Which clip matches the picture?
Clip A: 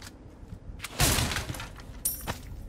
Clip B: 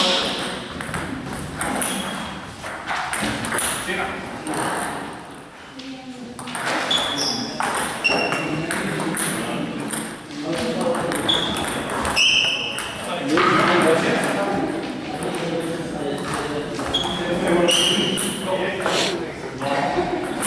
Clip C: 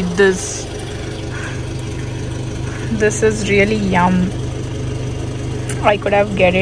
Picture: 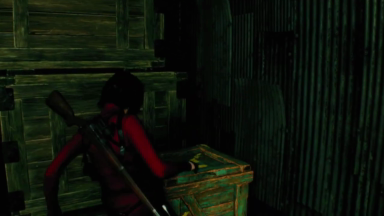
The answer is A